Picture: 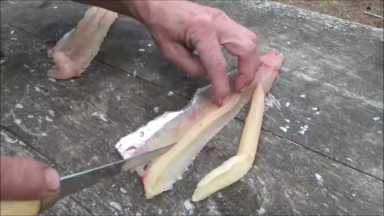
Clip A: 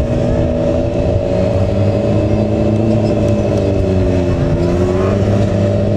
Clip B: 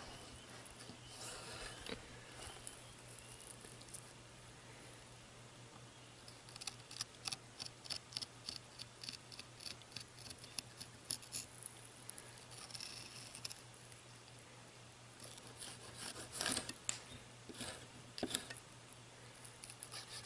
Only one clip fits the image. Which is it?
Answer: B